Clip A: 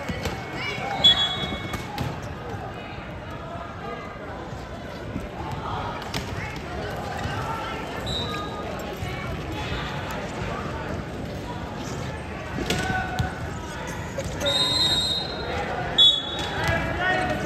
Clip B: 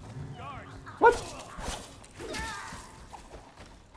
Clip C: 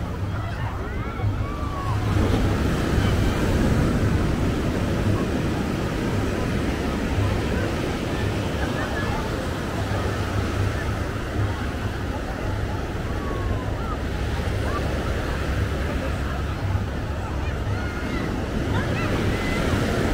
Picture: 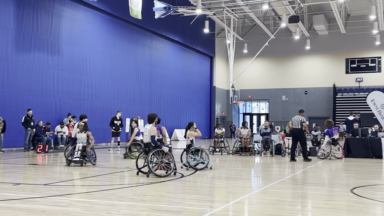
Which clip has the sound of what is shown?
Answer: A